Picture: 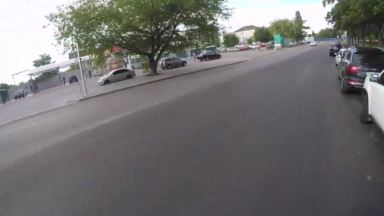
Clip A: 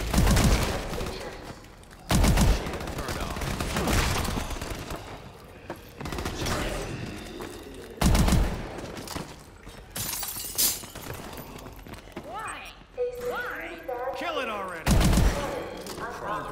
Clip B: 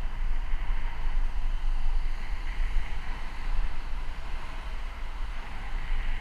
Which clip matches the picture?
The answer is B